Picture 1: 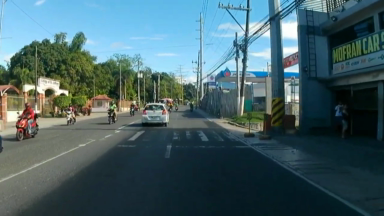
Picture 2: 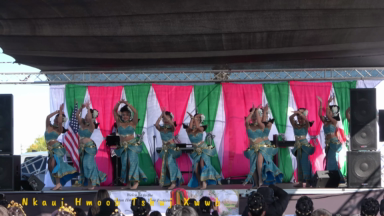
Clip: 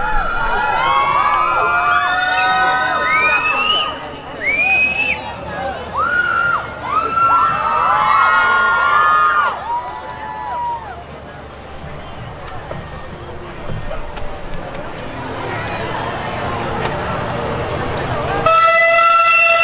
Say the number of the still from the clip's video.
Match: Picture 2